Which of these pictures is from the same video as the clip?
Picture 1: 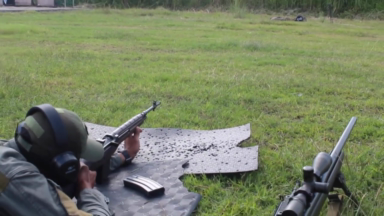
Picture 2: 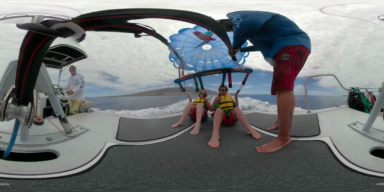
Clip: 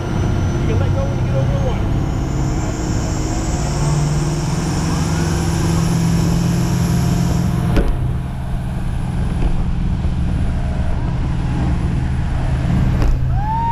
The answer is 2